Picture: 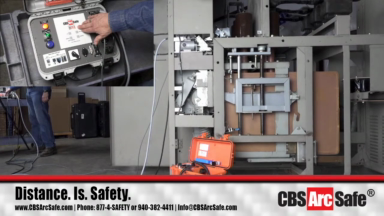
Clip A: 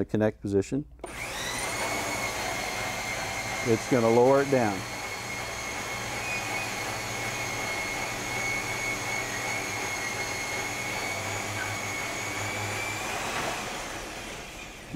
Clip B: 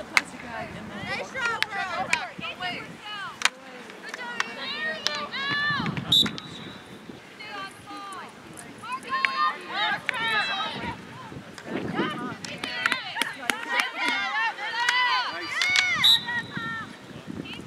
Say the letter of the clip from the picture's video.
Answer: A